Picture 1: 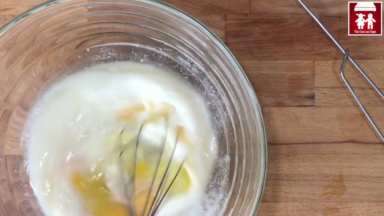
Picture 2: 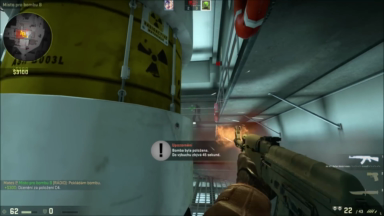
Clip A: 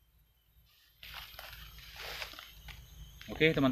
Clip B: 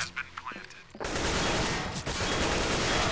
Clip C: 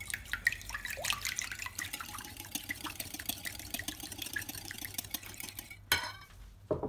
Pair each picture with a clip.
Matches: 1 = C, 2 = B